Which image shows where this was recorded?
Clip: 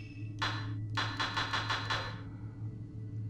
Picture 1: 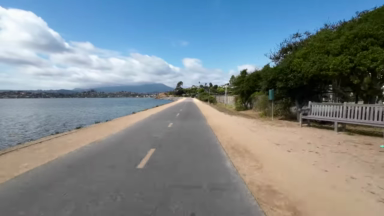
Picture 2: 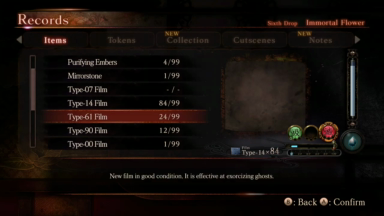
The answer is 2